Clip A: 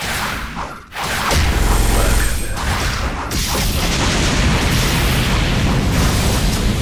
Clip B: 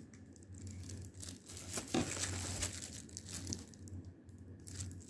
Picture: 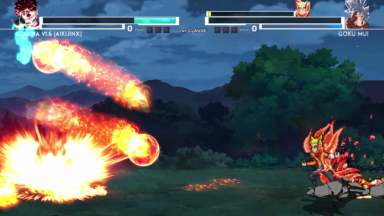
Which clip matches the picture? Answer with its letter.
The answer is A